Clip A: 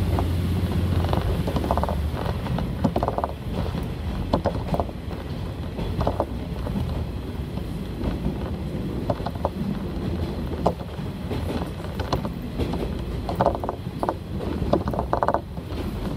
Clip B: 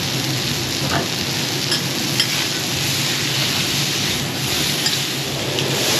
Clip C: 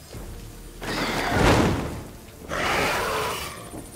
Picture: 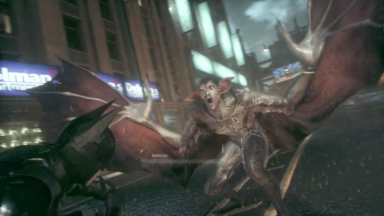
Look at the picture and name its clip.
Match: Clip C